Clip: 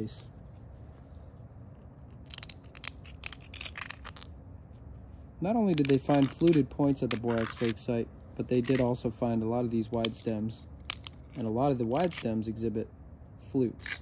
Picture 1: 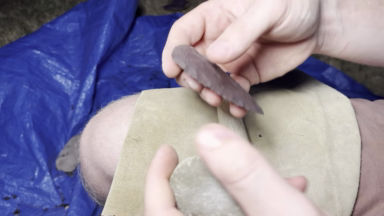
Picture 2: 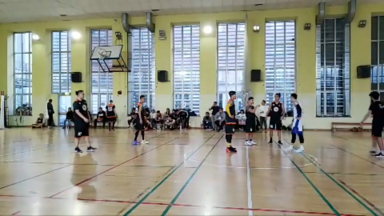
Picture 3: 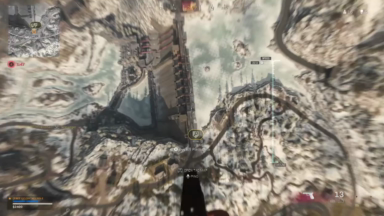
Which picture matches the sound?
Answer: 1